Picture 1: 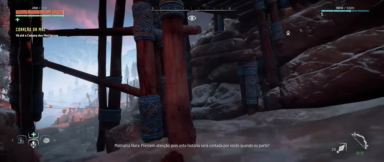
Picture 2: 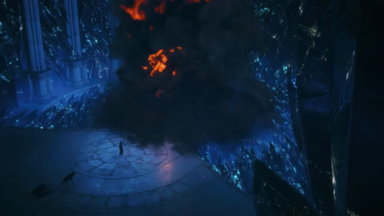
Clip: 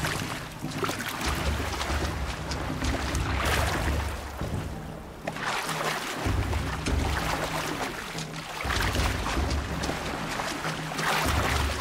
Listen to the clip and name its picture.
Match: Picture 1